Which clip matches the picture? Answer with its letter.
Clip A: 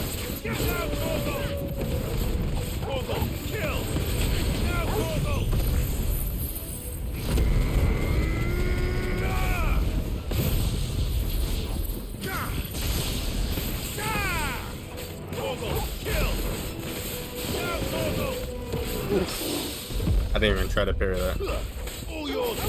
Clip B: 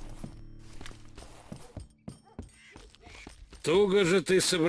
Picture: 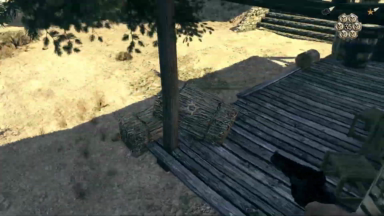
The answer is B